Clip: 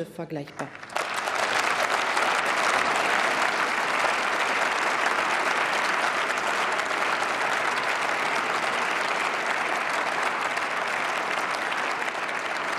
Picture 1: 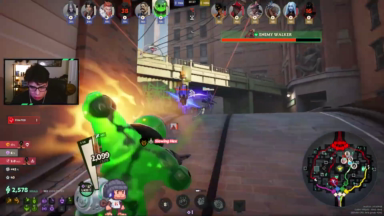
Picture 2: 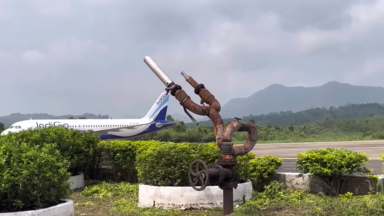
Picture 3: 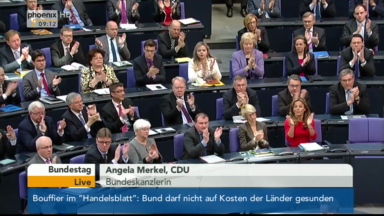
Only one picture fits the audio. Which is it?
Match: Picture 3